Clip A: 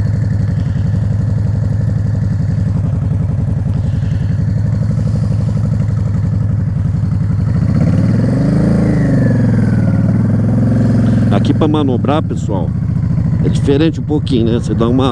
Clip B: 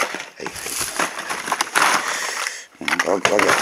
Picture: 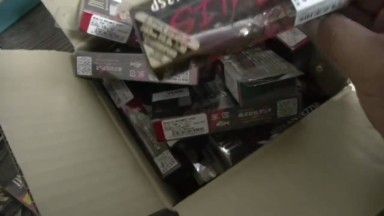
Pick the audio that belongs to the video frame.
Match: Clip B